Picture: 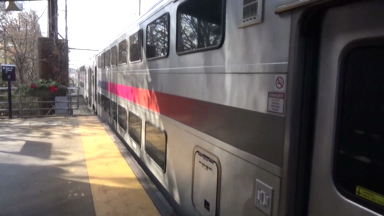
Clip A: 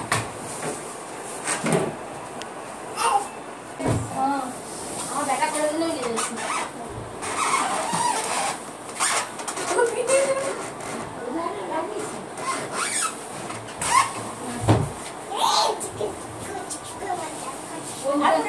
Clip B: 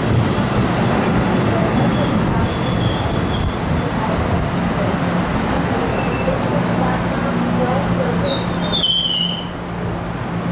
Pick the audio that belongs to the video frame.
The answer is B